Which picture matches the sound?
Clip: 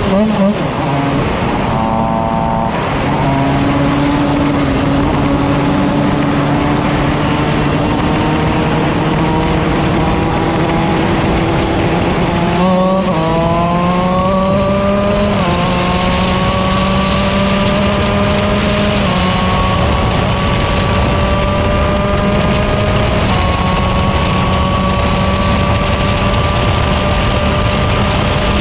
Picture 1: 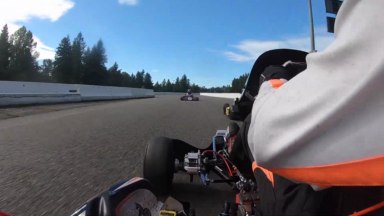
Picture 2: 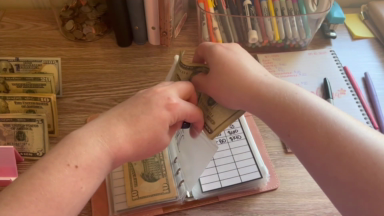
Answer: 1